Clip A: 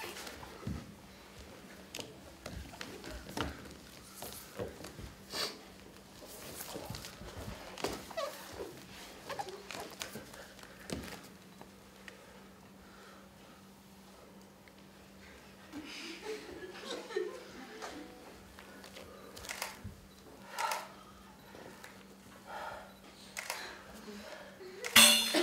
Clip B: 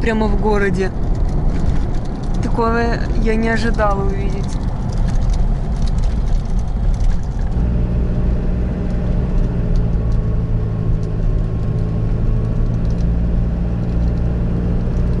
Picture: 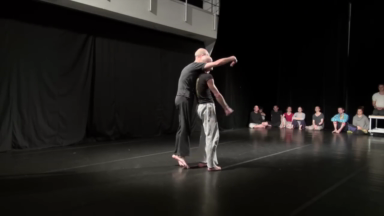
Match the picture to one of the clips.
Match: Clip A